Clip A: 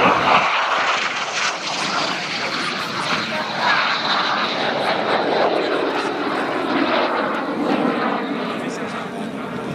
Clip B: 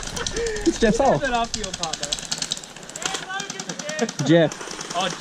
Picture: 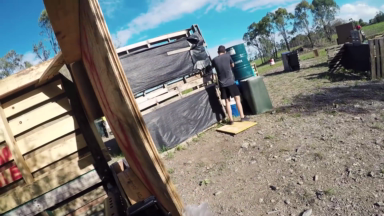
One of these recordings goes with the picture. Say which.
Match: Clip B